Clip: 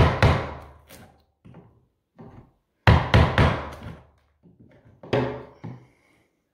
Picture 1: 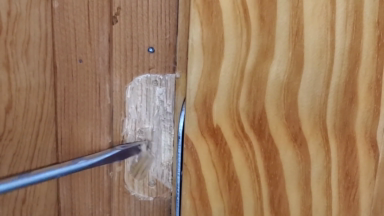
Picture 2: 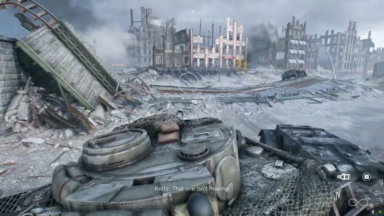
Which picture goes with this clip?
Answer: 1